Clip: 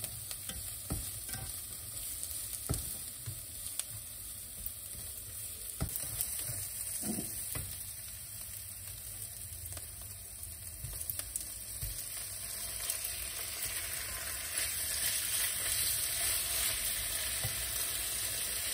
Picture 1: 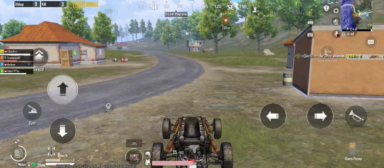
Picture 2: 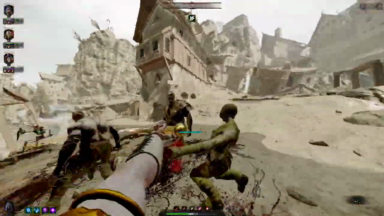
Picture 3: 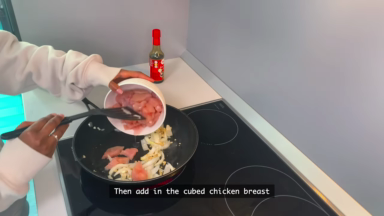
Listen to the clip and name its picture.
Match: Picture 3